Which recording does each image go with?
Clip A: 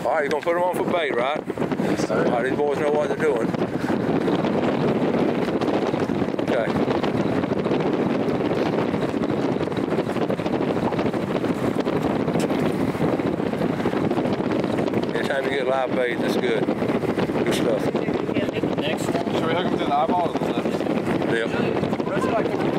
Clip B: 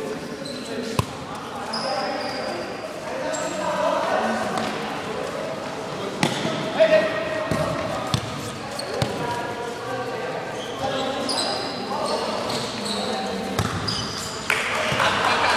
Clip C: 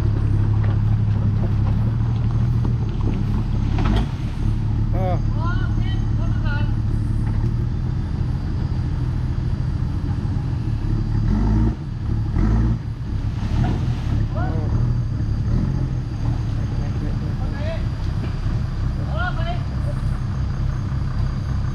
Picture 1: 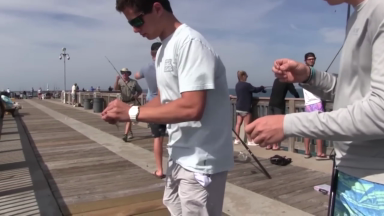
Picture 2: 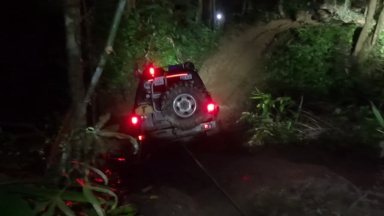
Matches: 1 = A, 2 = C